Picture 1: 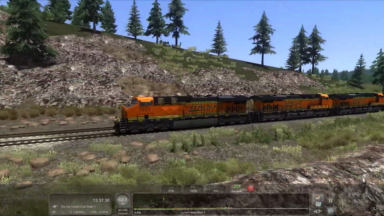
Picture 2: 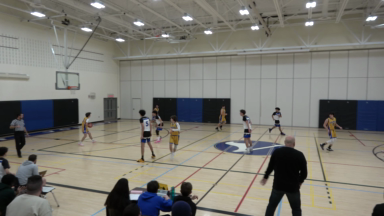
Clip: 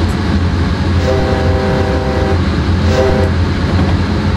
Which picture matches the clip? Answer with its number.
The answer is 1